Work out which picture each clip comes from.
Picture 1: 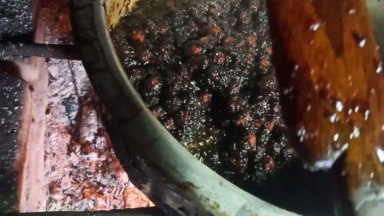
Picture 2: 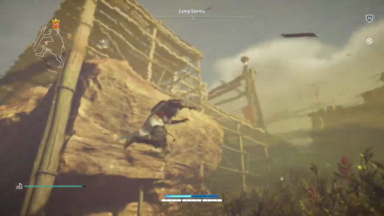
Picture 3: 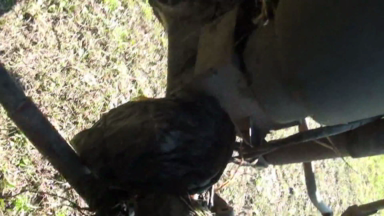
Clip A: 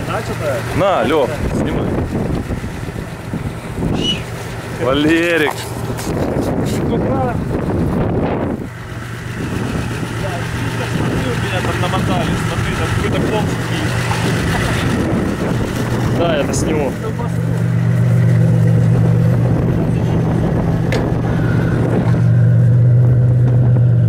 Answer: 3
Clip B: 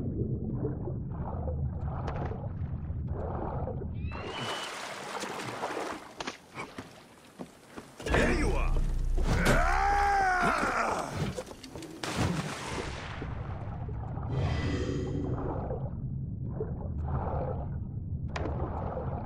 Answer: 2